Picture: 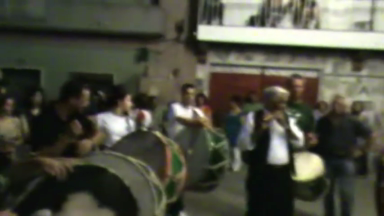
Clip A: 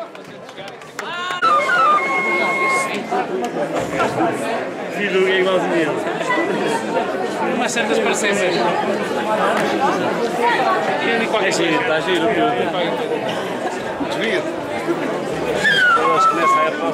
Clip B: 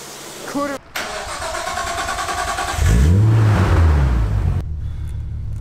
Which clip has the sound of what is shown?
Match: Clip A